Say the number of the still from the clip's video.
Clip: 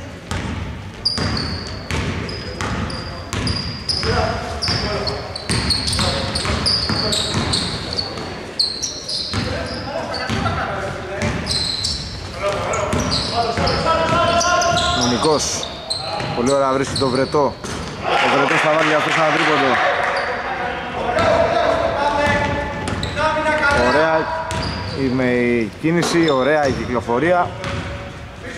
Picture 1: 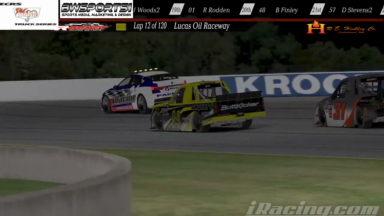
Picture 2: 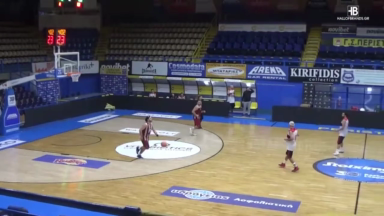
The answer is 2